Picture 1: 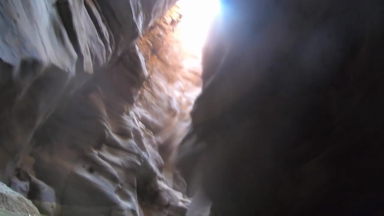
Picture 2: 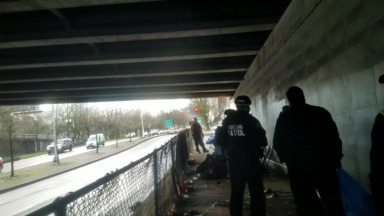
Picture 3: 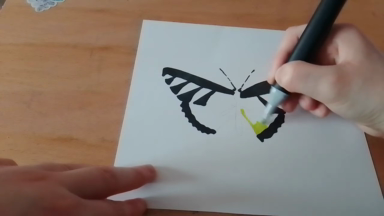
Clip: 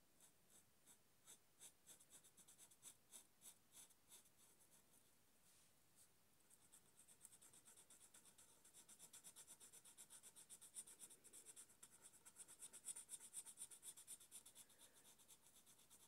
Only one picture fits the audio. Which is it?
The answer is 3